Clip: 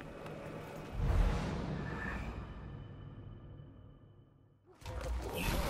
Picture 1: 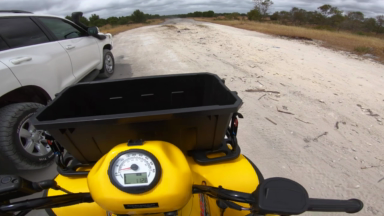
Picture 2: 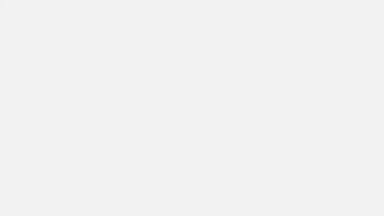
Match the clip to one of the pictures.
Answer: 2